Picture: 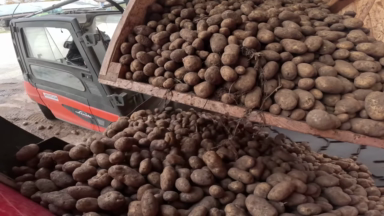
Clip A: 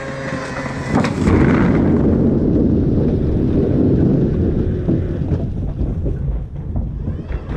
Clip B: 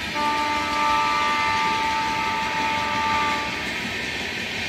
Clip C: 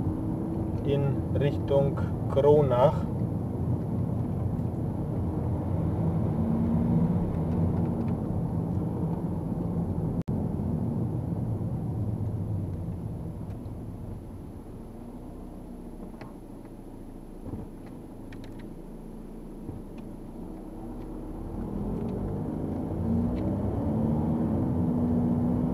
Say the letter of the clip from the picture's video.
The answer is A